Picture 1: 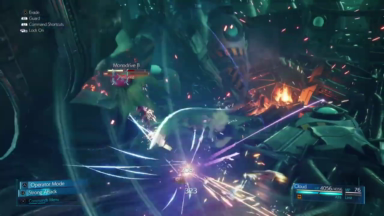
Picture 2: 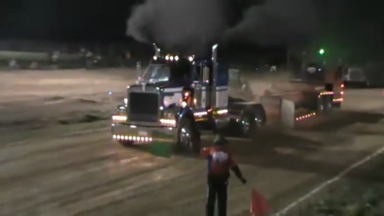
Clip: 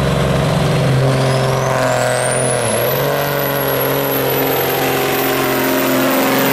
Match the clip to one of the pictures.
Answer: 2